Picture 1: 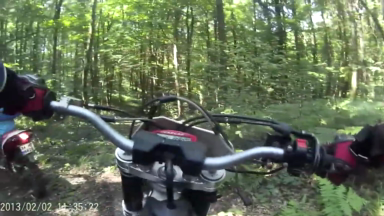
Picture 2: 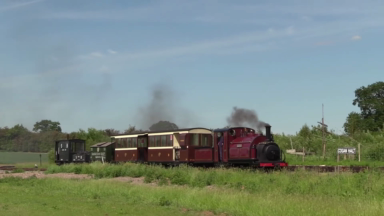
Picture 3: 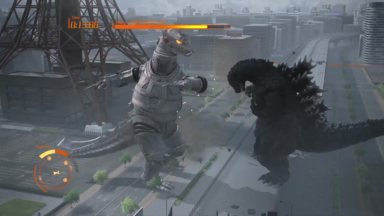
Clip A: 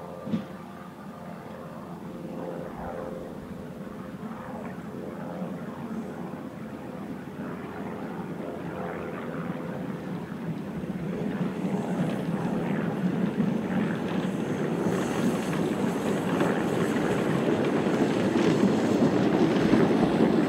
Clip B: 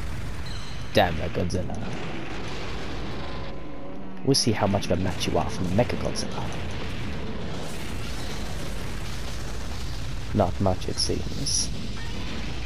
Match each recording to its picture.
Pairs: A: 2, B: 3